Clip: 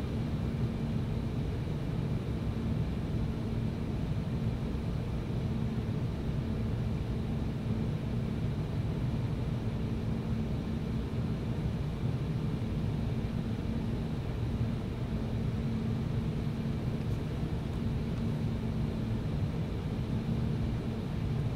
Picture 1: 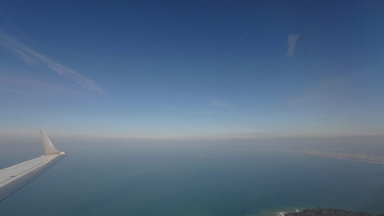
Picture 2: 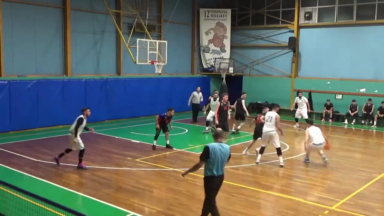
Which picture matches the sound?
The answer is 1